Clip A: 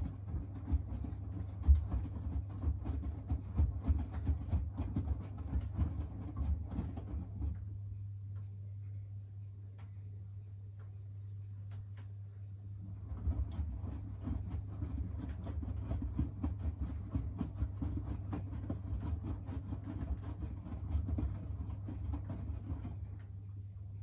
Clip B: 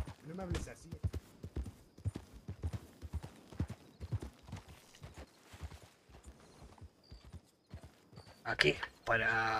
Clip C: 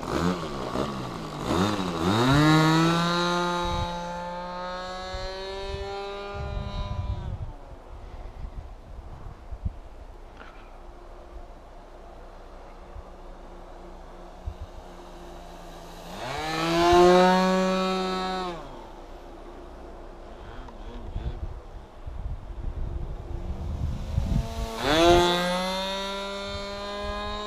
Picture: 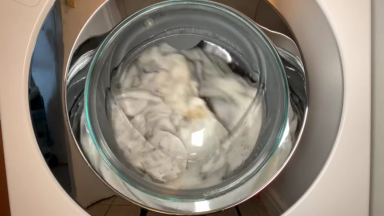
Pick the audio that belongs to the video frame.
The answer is A